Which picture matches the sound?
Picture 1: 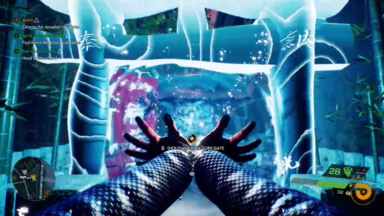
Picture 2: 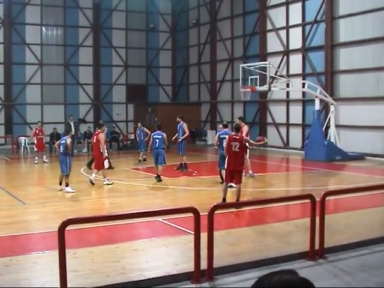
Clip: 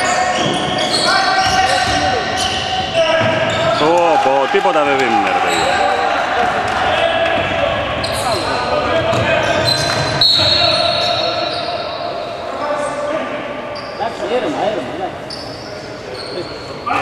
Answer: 2